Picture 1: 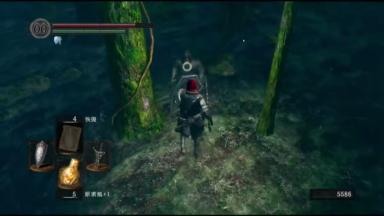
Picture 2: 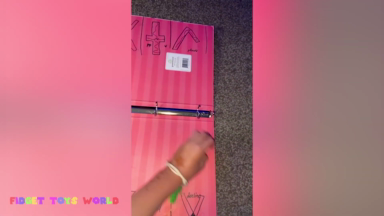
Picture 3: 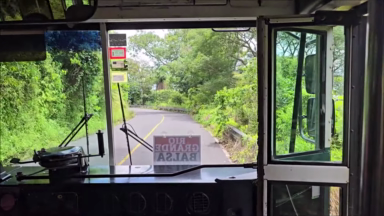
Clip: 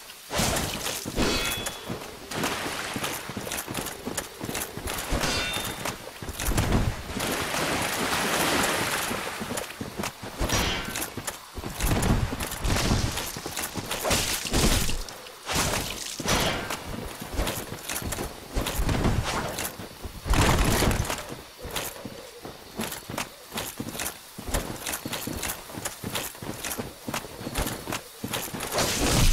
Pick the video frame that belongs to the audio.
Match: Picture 1